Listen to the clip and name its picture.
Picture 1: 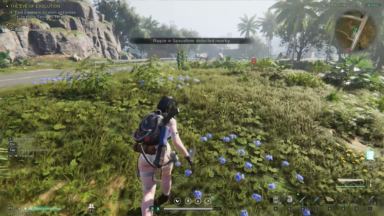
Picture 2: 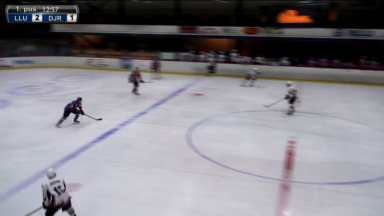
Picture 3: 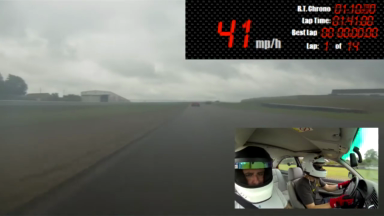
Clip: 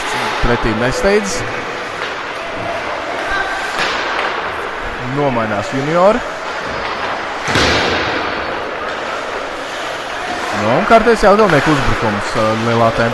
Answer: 2